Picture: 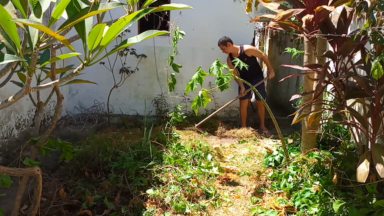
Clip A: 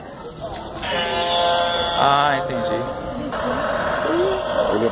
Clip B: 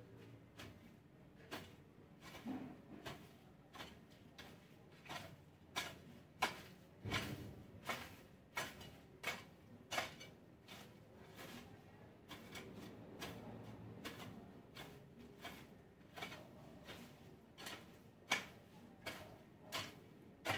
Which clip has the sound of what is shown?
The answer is B